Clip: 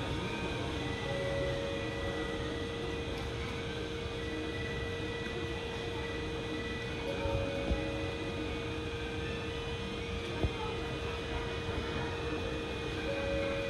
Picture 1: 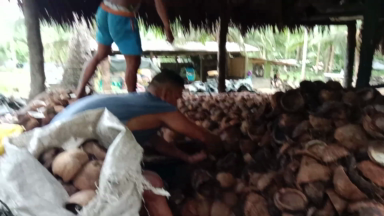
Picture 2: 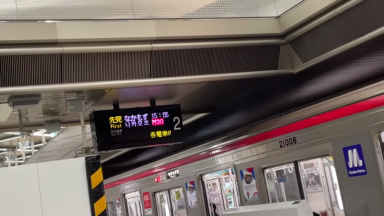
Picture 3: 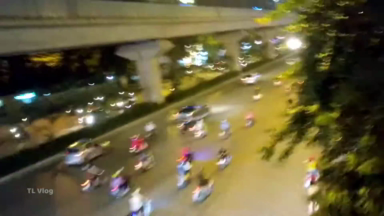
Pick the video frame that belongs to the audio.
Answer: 2